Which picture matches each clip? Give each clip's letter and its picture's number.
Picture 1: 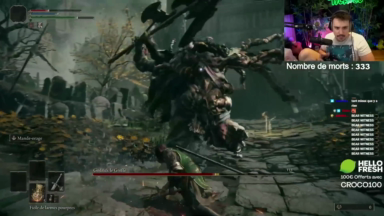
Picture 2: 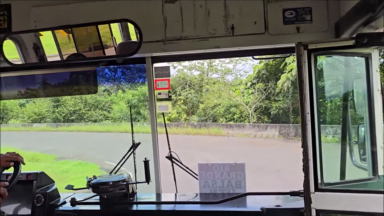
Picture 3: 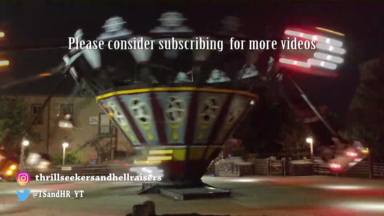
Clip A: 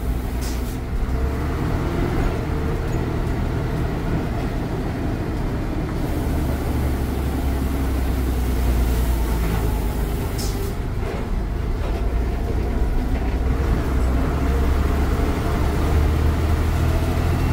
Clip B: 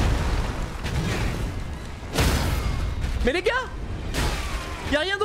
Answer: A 2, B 1